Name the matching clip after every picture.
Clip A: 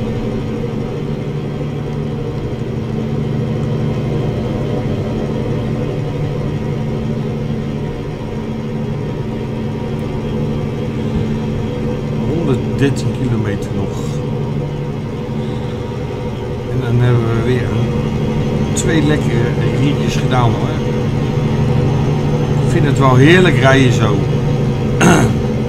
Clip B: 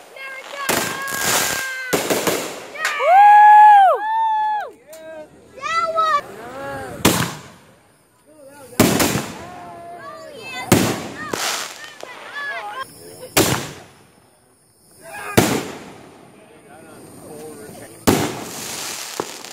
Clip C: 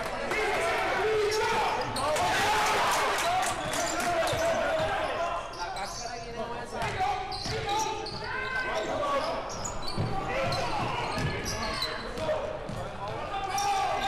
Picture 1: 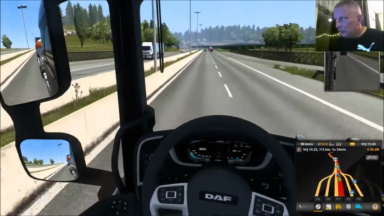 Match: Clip A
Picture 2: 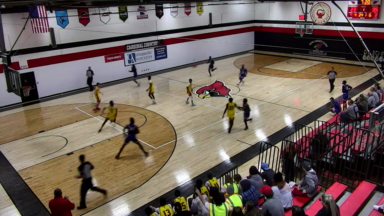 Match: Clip C